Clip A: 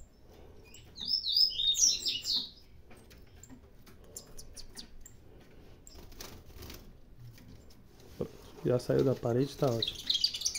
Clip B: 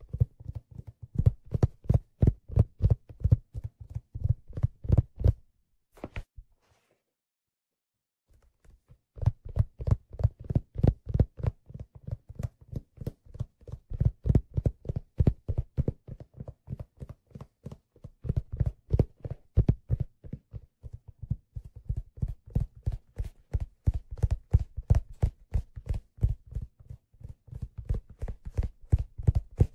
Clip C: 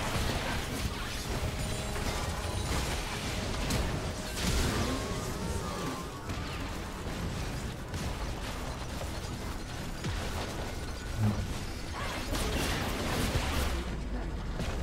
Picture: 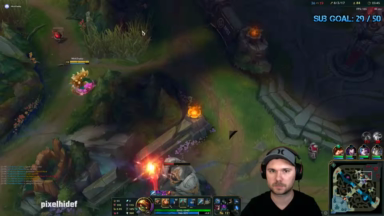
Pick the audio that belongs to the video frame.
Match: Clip C